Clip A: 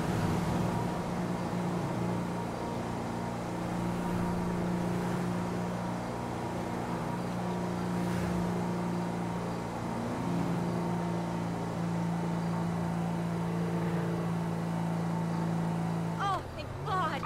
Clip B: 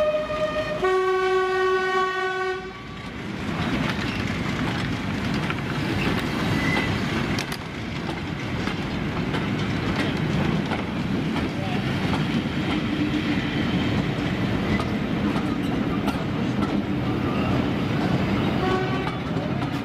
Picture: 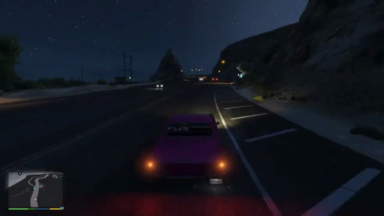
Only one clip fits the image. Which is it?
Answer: A